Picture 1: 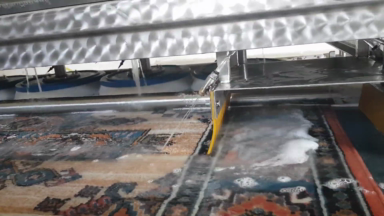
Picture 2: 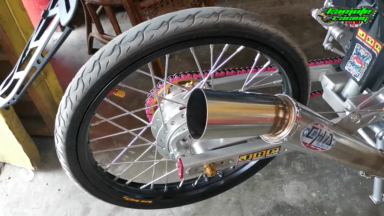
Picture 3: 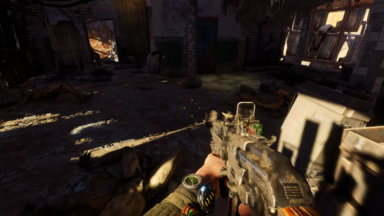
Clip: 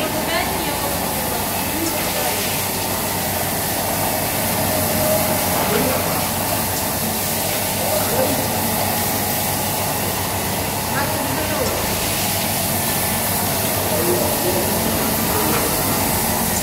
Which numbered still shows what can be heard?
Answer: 1